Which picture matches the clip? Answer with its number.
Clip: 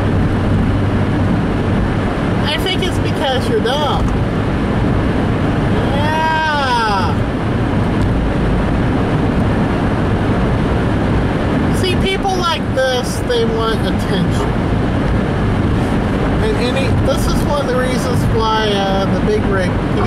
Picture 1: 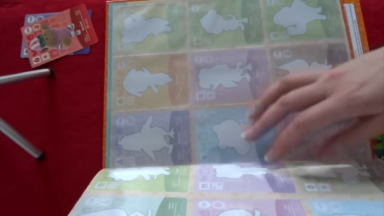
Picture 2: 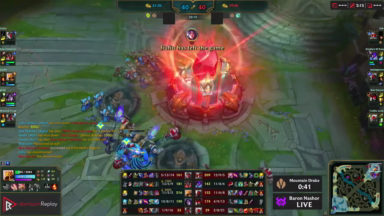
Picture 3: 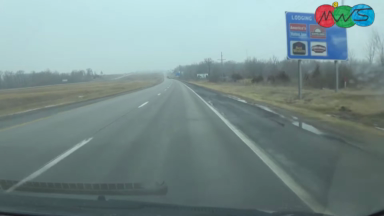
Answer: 3